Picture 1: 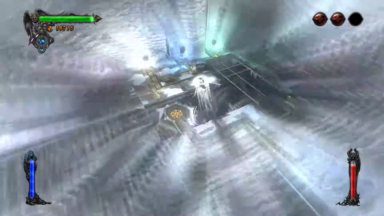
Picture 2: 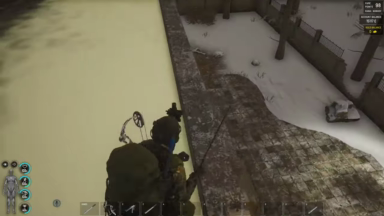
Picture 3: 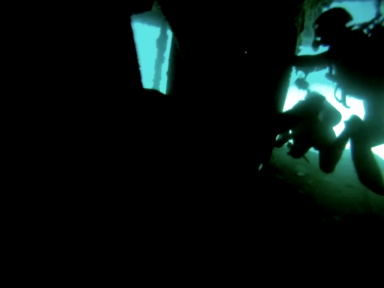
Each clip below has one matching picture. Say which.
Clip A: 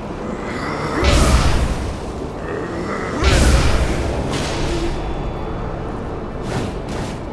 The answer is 1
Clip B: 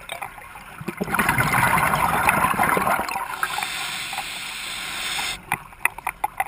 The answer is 3